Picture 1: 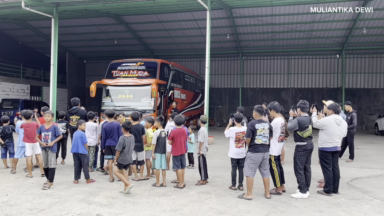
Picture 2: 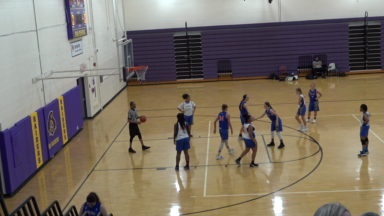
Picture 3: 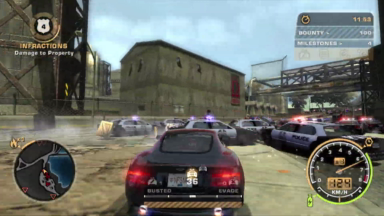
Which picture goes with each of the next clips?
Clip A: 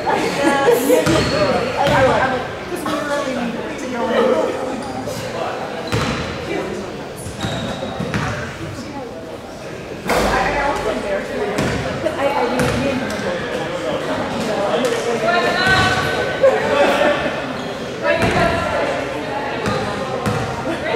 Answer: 2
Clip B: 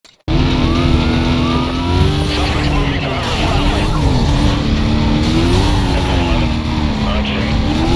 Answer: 3